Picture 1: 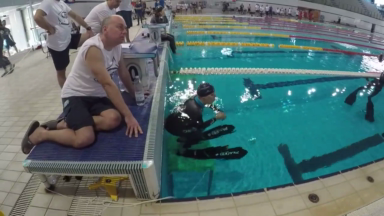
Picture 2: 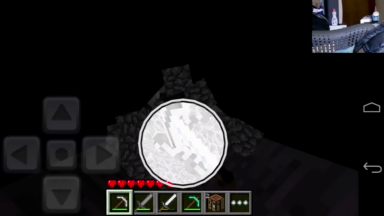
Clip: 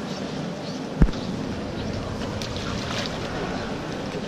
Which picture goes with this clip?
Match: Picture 1